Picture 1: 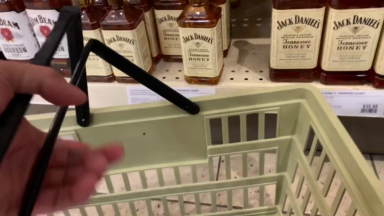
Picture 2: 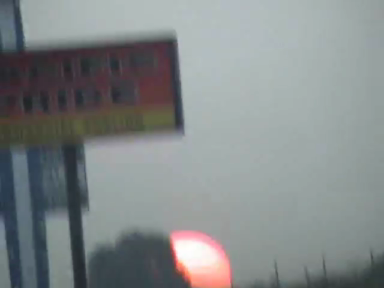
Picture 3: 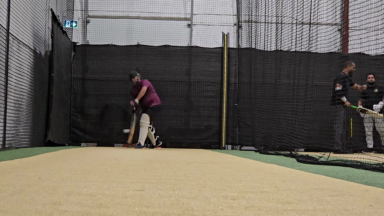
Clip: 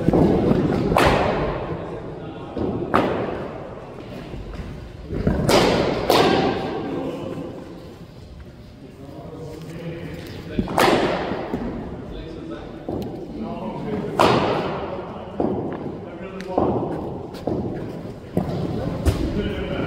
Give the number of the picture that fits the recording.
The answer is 3